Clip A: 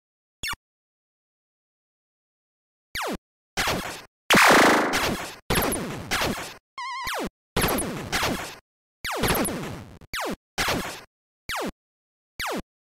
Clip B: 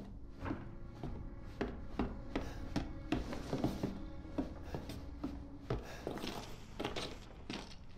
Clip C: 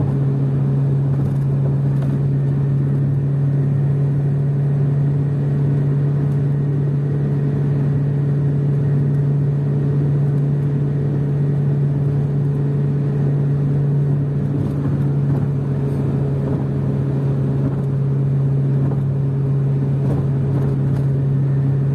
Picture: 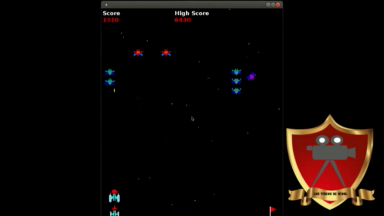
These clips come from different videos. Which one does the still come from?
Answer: A